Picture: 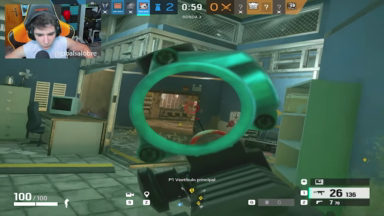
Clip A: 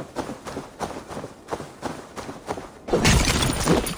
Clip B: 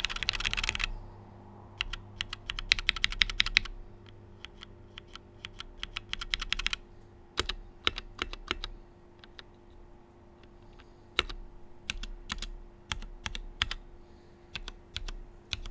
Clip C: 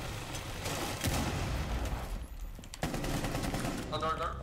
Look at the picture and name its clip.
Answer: C